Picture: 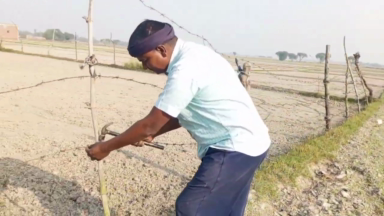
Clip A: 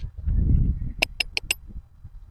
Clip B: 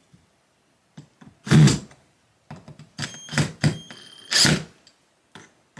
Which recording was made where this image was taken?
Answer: A